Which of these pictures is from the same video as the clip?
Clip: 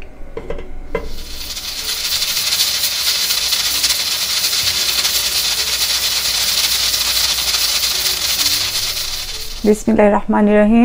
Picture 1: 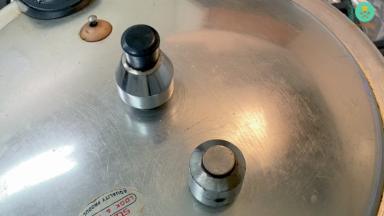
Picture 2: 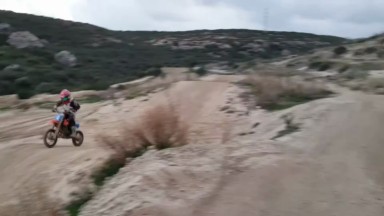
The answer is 1